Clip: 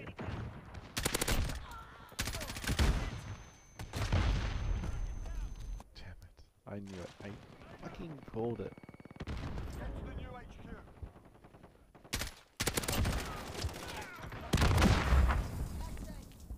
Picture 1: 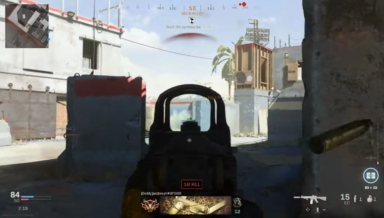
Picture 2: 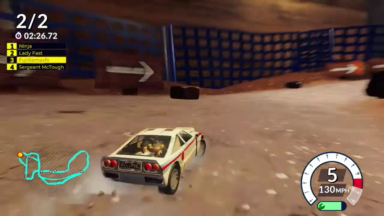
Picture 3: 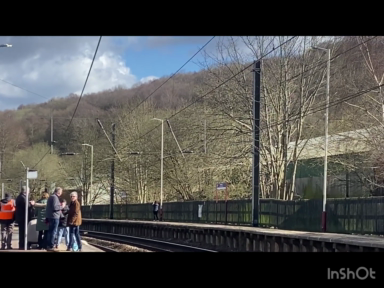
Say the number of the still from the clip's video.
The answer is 1